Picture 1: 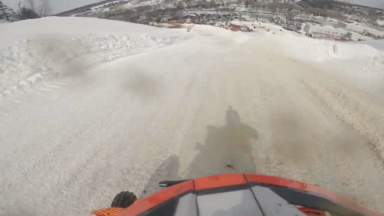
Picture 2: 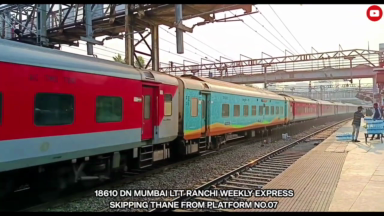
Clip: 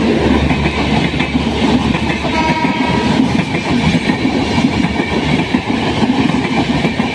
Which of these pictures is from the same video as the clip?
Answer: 2